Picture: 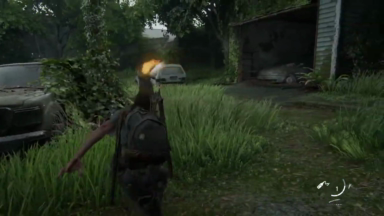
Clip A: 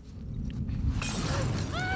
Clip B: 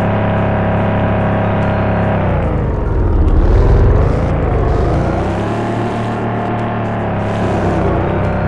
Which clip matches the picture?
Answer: A